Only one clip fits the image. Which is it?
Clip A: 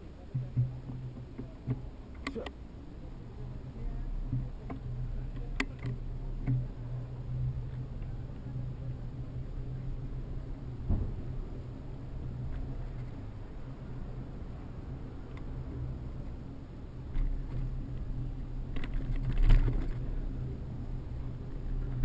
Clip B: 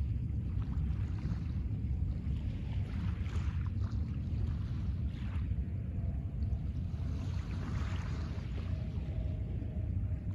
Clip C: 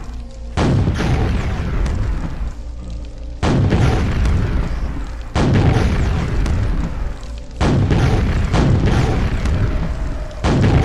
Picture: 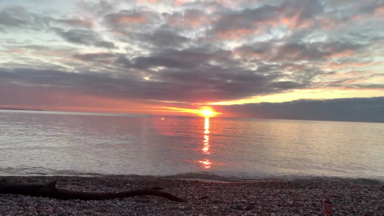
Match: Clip B